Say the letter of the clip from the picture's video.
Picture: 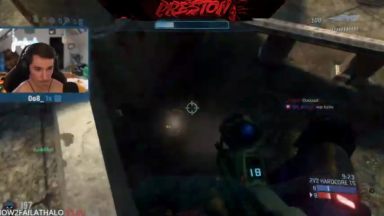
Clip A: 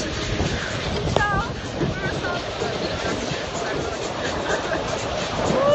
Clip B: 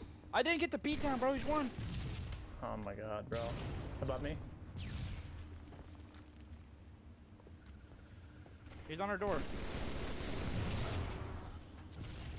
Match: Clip B